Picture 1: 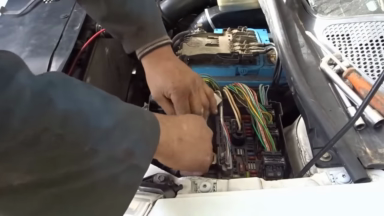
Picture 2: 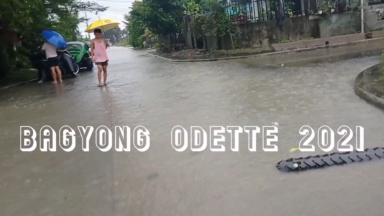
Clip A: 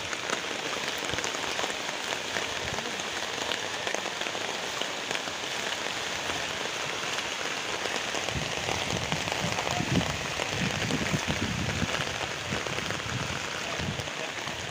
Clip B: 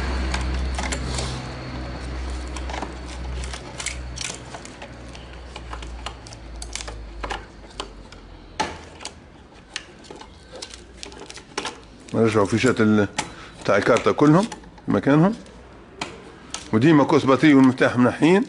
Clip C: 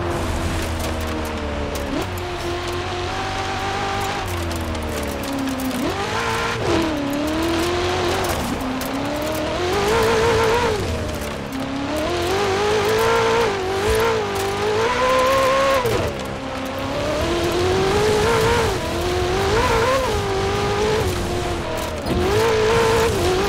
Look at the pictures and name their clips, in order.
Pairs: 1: B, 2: A